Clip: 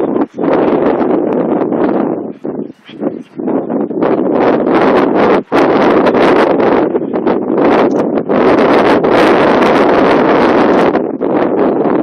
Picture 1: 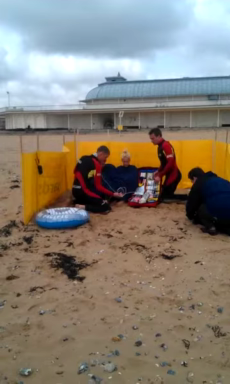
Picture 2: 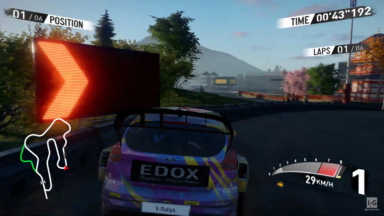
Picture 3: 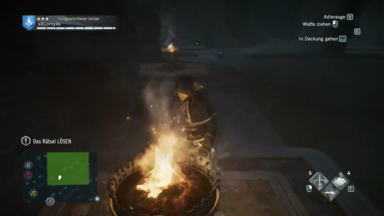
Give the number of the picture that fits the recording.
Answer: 1